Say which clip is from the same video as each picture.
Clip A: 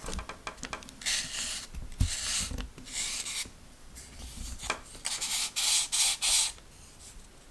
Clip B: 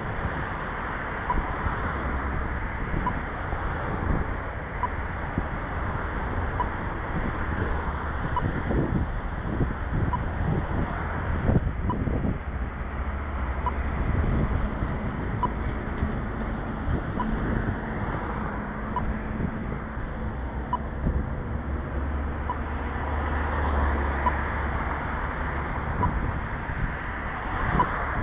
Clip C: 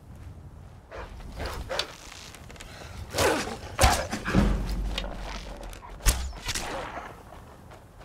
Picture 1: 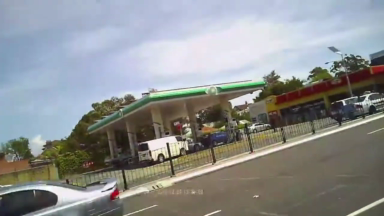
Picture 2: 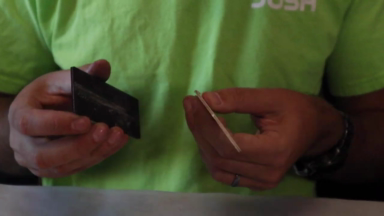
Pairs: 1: B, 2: A